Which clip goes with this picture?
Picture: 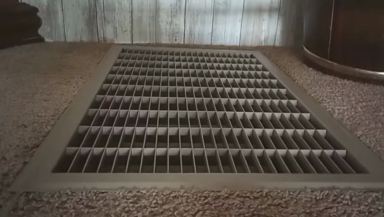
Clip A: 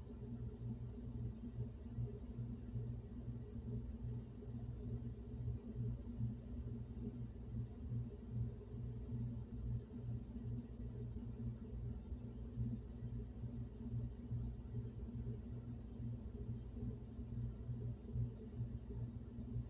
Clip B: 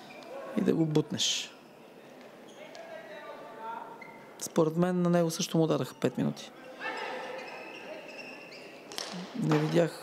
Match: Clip A